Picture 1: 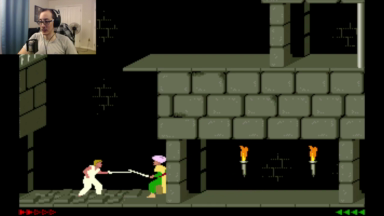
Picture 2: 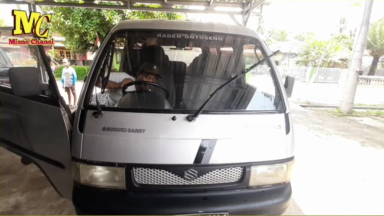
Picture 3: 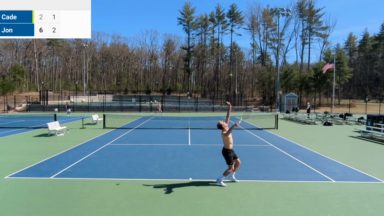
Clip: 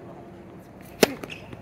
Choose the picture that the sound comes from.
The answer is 3